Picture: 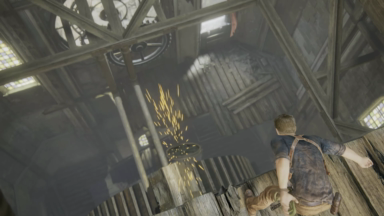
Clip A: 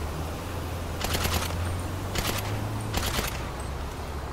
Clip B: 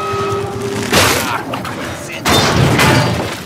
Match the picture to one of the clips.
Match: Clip B